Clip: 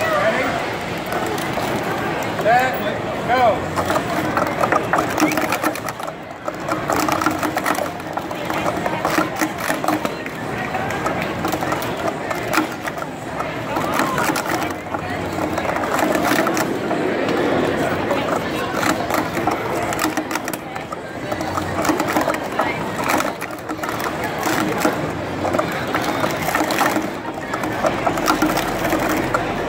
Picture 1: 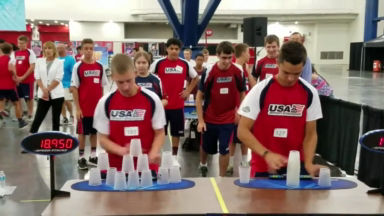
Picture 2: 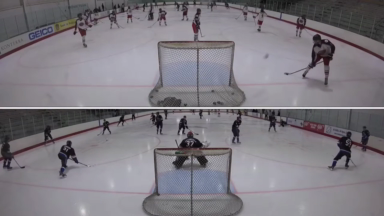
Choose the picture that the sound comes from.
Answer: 1